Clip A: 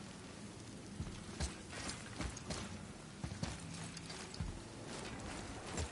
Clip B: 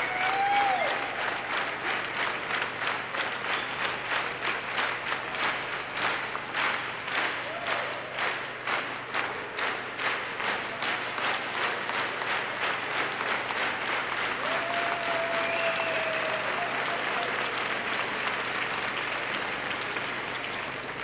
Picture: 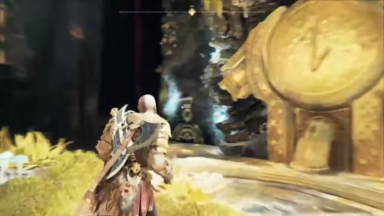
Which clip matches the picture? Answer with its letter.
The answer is A